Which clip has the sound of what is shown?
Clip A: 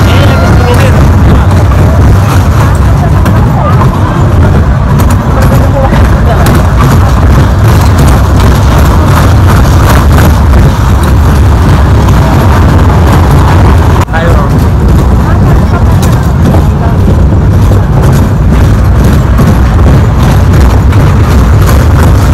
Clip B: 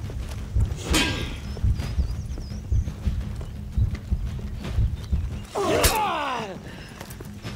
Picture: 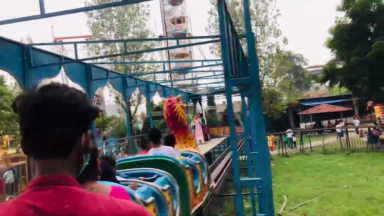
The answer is A